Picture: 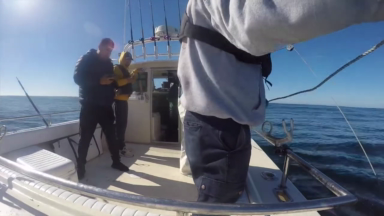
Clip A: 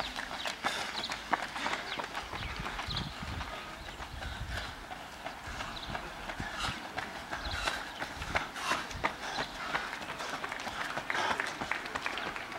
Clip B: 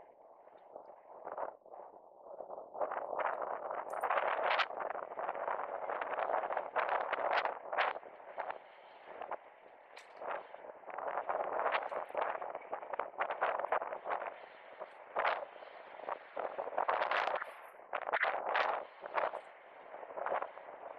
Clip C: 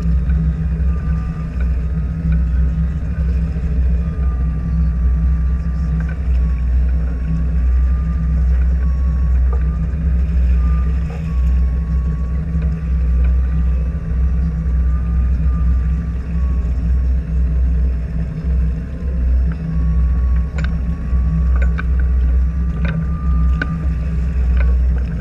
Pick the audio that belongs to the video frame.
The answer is C